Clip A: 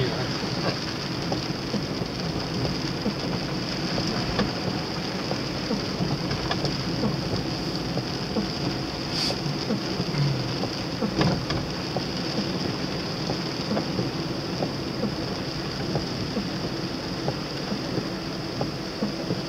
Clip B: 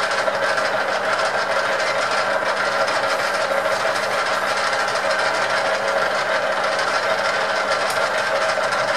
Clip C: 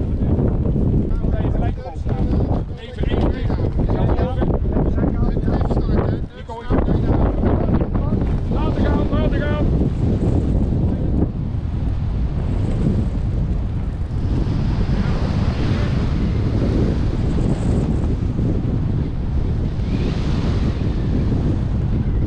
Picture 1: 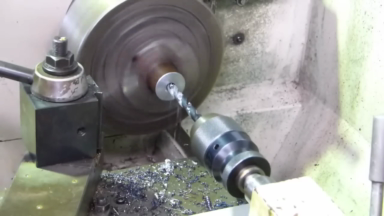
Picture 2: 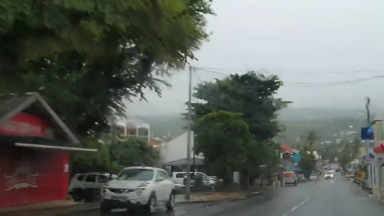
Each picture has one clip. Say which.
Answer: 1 B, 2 A